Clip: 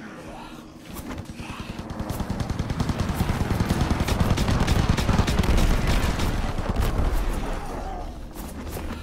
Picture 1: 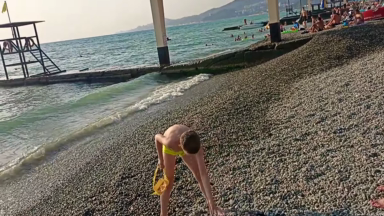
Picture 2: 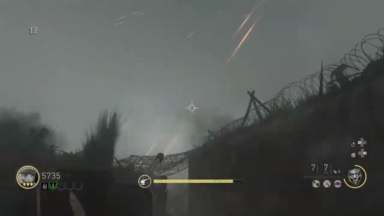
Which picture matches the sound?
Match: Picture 2